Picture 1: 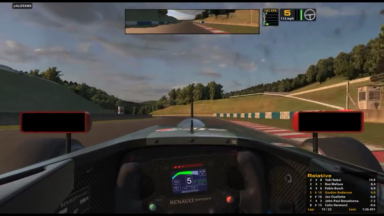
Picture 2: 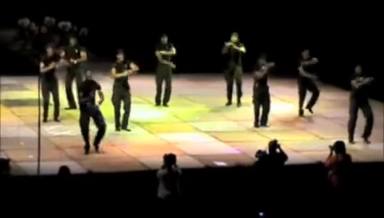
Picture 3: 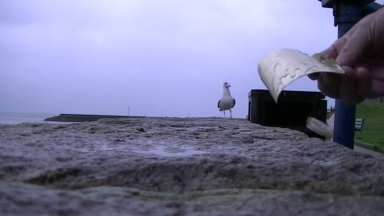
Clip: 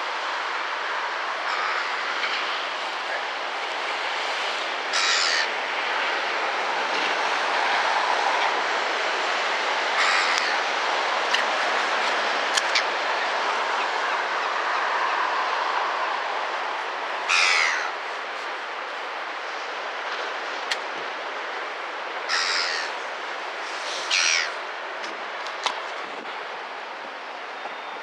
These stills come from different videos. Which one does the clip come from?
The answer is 3